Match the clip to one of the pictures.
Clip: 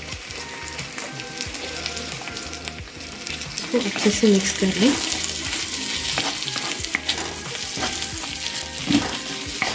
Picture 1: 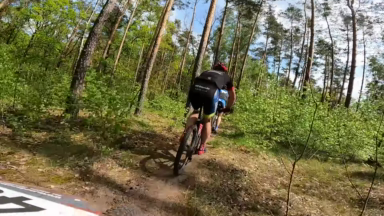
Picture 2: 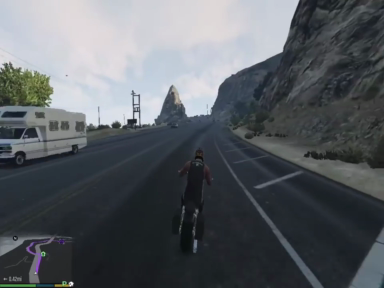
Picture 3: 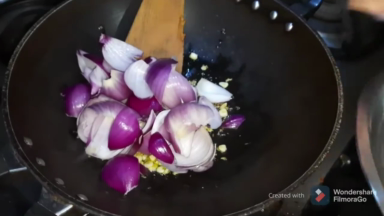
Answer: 3